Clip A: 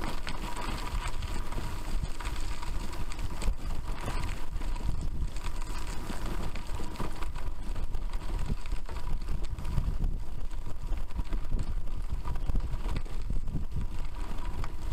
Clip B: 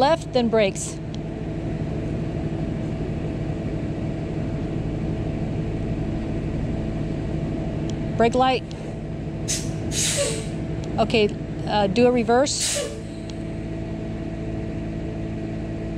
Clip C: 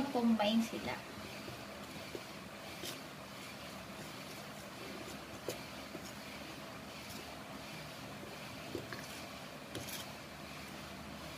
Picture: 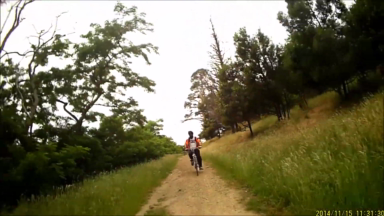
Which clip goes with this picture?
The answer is A